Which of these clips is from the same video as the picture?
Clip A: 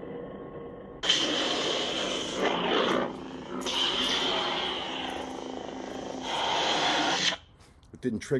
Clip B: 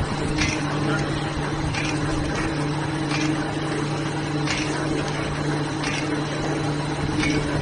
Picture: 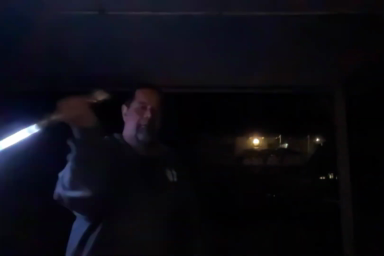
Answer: A